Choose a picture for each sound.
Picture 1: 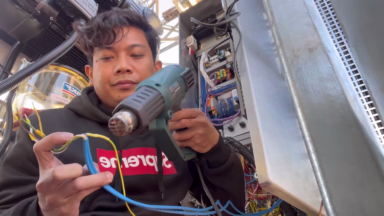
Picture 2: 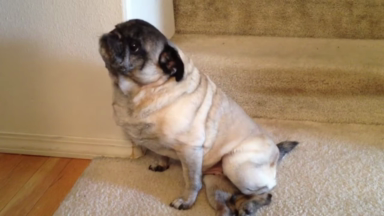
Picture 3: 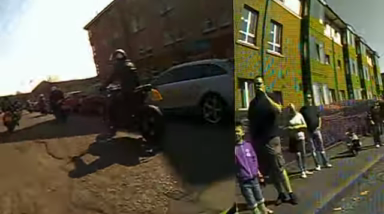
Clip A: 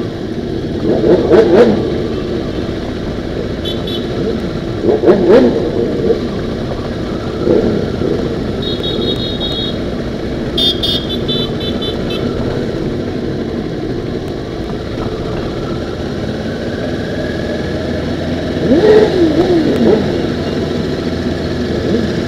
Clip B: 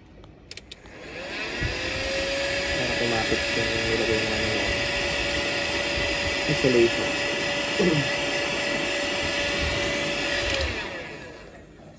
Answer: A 3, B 1